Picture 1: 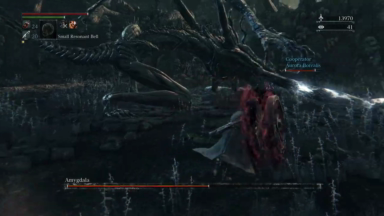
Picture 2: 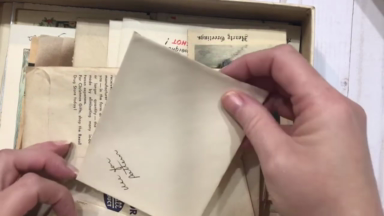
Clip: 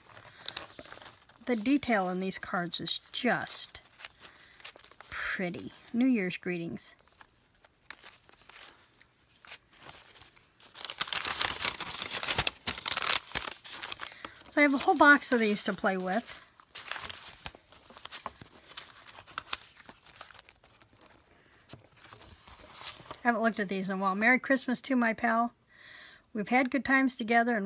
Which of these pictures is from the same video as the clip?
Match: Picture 2